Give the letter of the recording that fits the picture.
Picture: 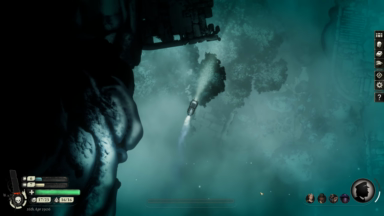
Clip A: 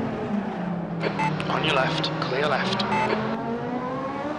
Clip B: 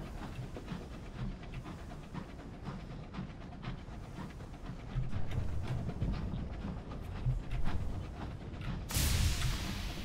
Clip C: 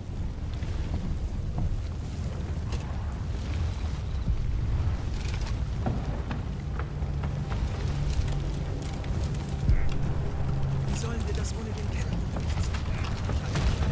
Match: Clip B